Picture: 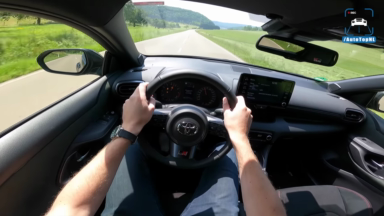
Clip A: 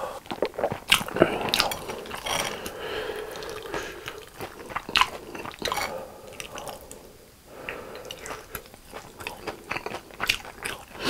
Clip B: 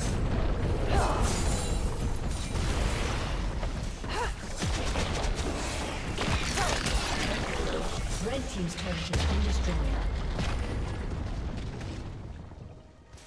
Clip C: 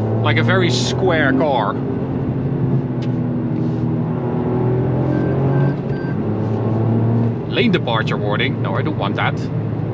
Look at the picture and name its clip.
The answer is C